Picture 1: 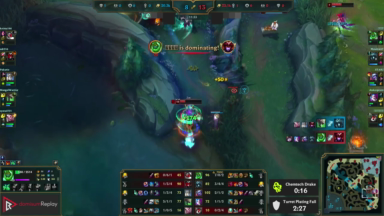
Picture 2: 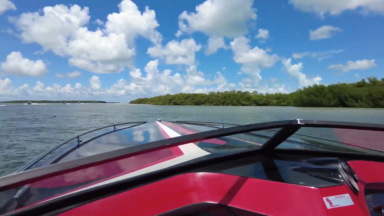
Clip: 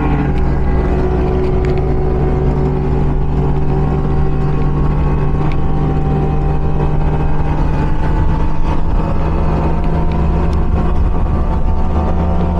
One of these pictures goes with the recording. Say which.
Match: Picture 2